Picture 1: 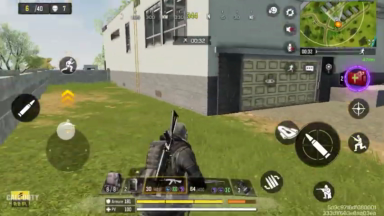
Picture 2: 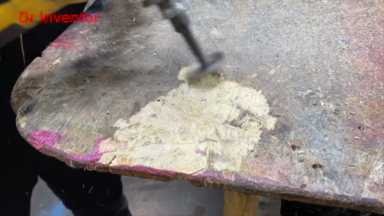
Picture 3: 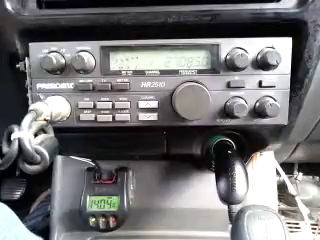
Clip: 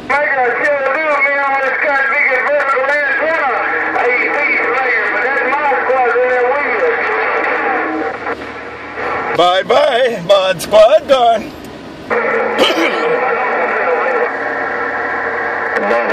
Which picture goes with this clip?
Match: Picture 3